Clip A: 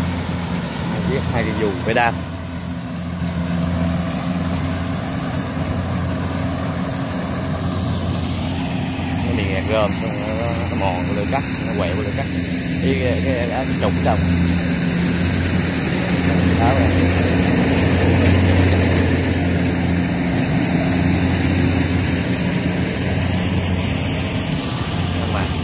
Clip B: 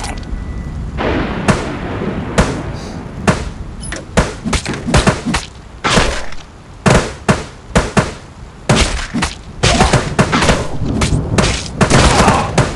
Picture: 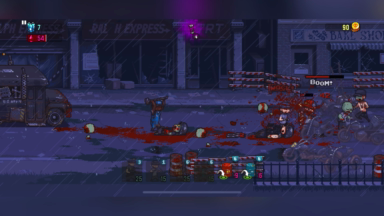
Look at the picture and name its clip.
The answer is B